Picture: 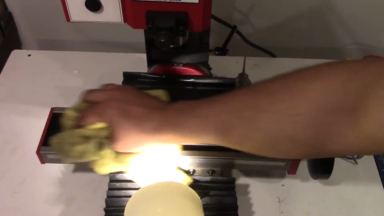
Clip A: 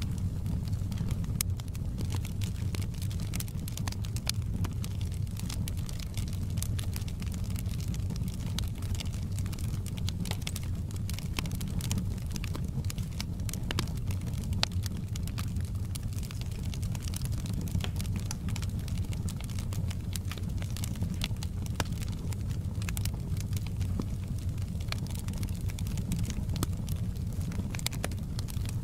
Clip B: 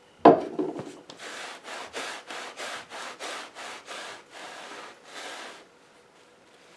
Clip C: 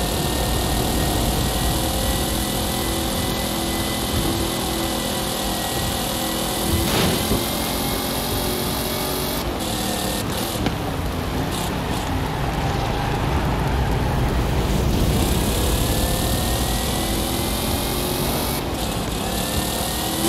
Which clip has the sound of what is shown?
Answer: B